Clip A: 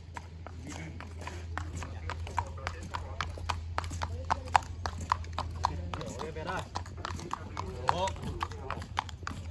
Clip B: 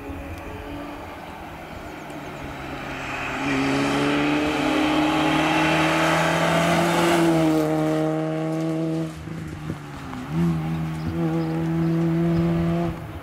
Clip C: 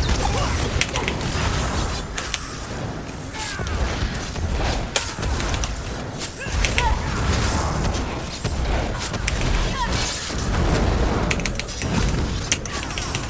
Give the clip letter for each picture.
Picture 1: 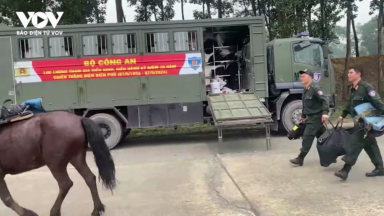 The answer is A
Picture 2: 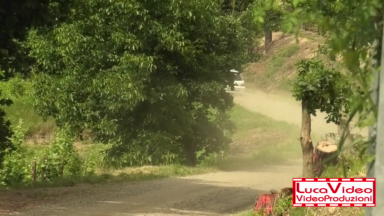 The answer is B